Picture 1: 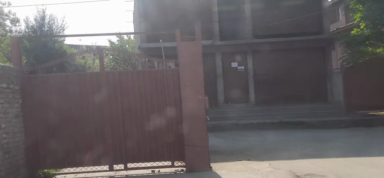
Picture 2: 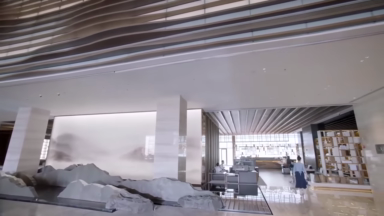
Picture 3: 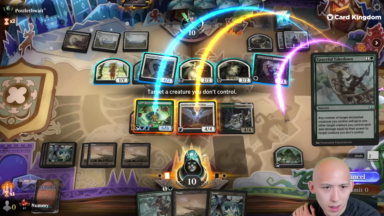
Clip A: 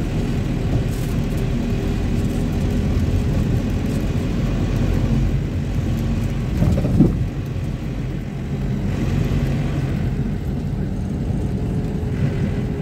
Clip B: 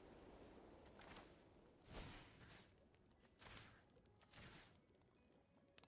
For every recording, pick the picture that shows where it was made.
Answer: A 1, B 3